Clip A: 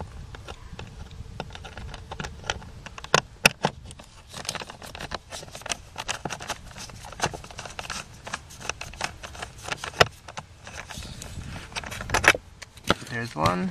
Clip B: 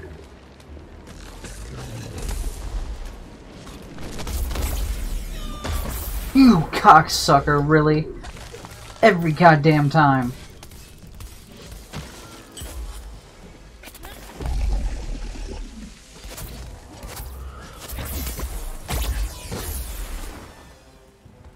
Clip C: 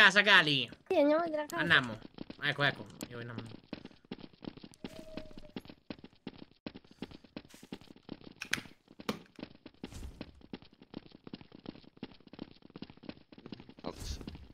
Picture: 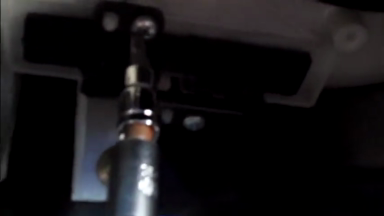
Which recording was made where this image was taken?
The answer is A